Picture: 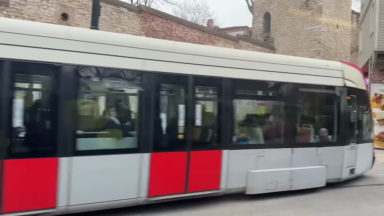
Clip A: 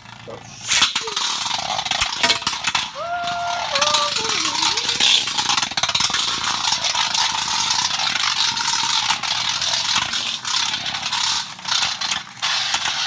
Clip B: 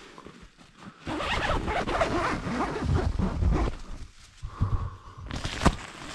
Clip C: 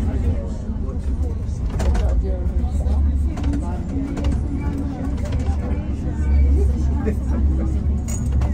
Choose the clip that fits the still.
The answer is C